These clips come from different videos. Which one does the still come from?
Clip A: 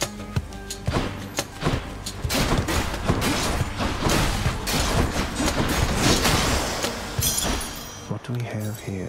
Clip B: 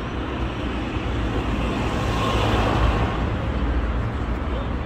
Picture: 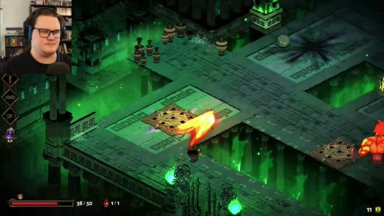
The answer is A